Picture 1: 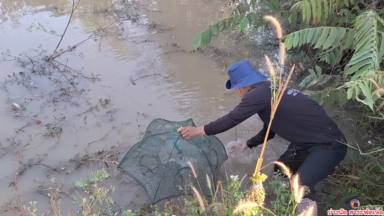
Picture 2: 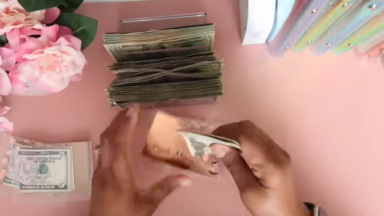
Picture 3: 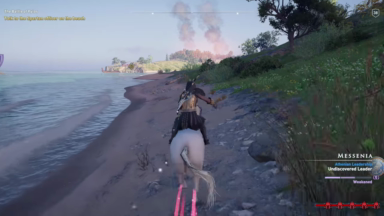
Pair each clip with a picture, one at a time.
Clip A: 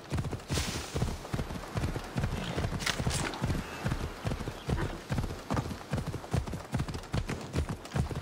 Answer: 3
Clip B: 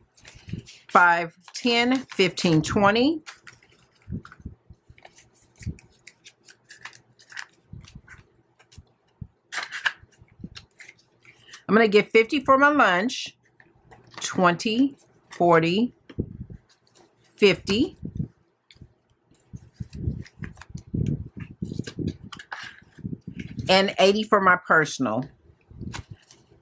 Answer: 2